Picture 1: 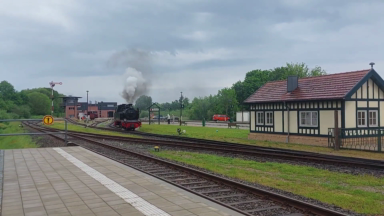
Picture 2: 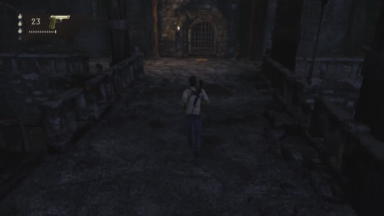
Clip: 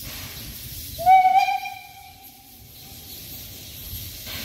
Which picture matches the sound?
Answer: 1